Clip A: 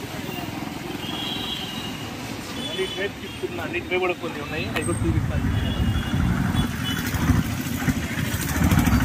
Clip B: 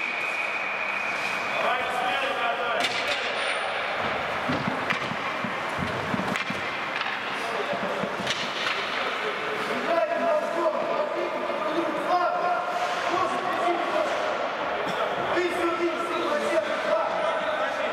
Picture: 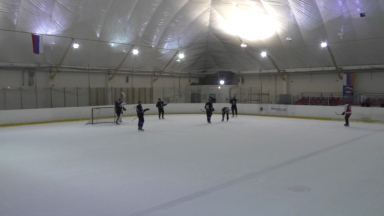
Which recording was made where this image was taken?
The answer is B